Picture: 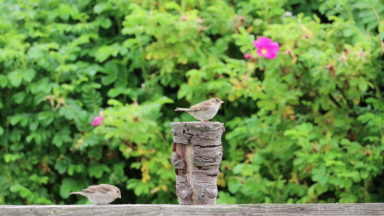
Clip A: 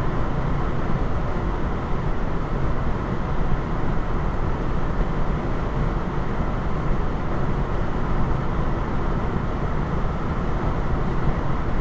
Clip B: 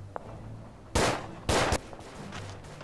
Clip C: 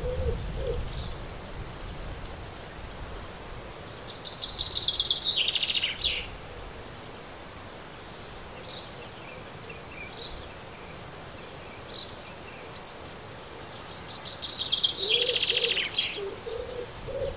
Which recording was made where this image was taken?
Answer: C